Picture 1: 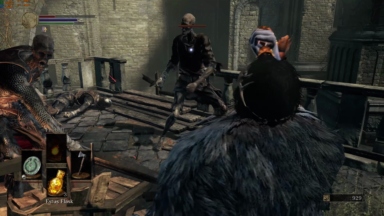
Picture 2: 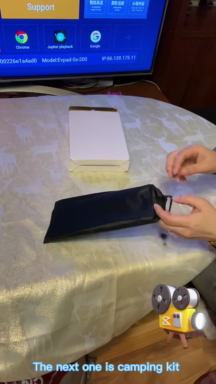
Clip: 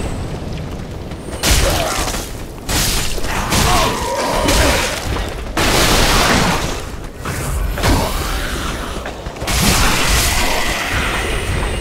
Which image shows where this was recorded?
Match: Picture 1